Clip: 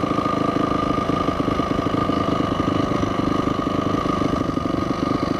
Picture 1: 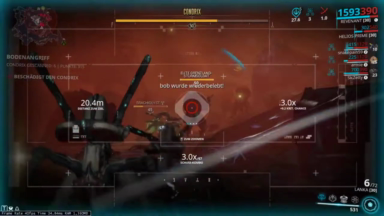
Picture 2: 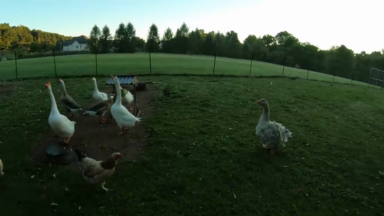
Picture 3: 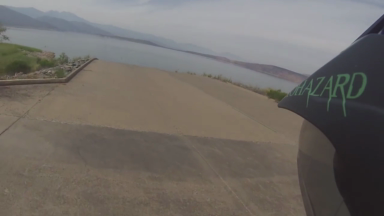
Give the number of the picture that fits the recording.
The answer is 3